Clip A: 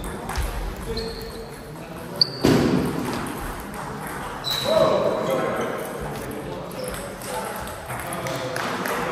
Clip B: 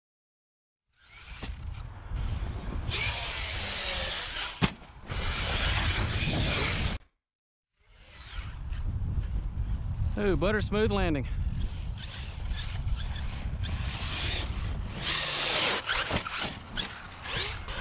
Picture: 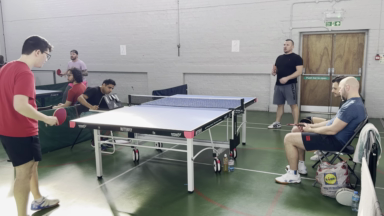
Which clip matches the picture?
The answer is A